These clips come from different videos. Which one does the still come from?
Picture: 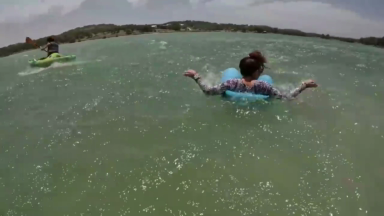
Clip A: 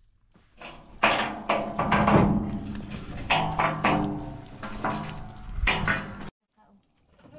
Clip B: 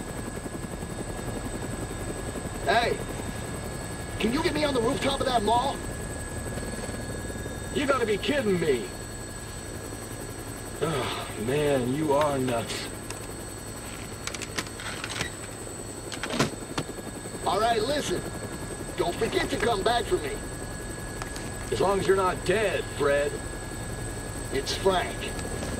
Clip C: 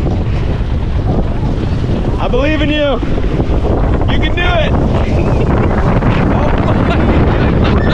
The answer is C